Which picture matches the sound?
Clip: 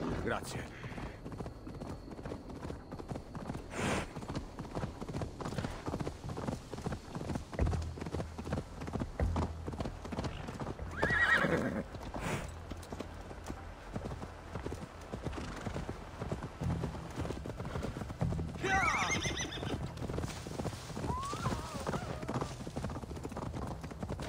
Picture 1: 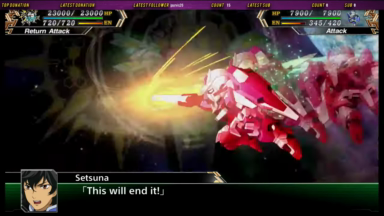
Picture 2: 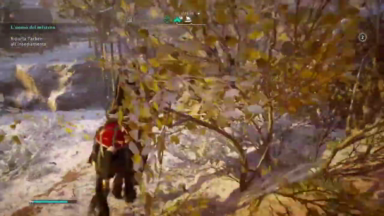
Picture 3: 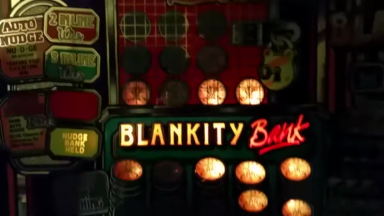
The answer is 2